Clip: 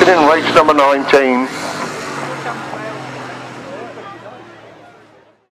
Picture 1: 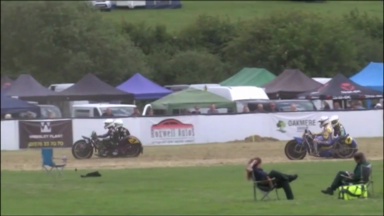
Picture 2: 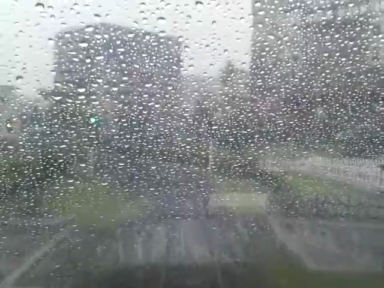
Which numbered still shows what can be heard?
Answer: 1